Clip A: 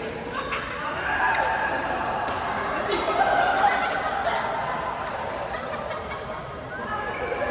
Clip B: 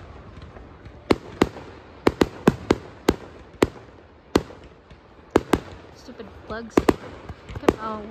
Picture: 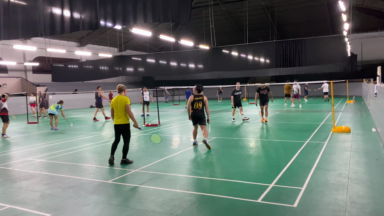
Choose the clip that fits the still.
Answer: A